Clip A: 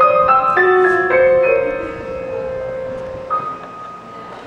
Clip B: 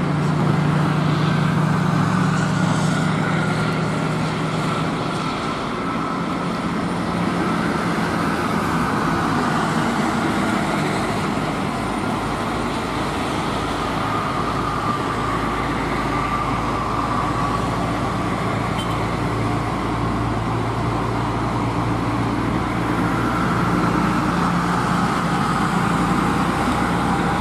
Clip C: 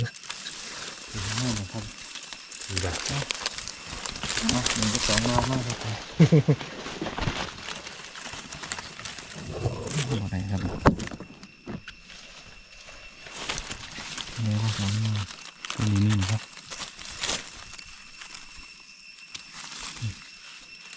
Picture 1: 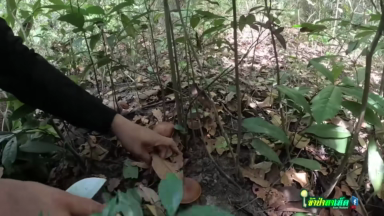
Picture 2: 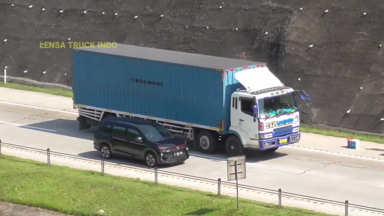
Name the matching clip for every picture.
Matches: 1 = C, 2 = B